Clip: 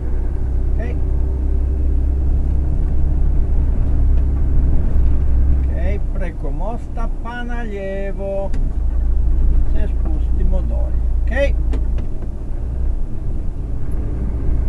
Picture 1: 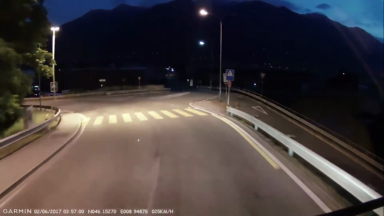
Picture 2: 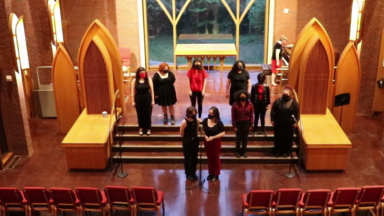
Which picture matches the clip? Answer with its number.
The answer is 1